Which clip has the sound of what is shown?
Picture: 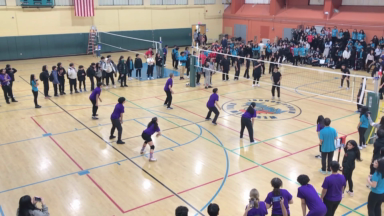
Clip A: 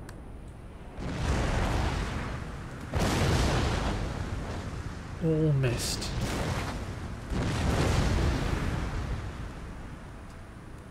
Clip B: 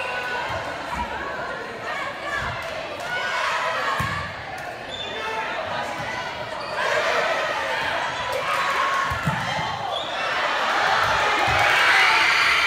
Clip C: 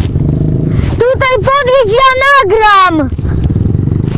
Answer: B